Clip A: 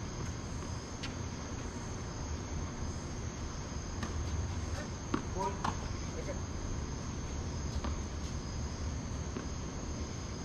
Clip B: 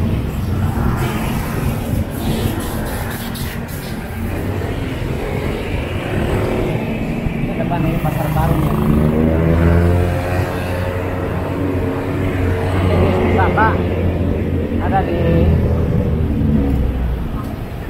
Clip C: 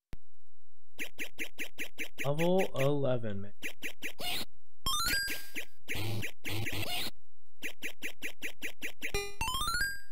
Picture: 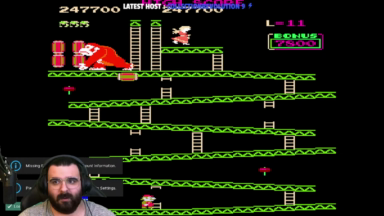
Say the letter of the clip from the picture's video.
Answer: C